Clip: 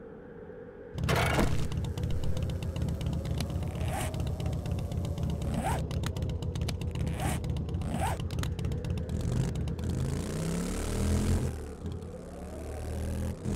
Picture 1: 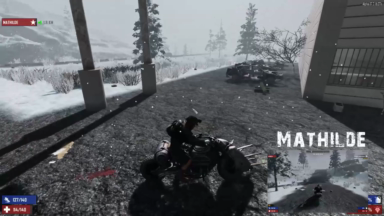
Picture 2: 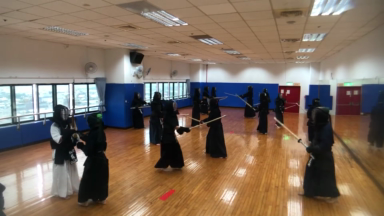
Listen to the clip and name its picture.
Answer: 1